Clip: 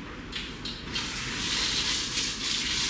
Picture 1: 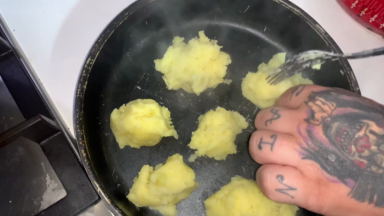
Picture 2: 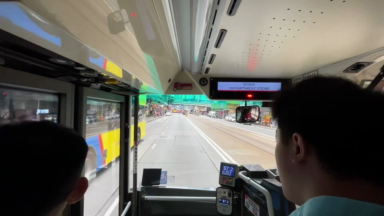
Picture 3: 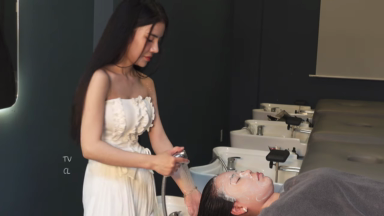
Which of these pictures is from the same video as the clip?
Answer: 3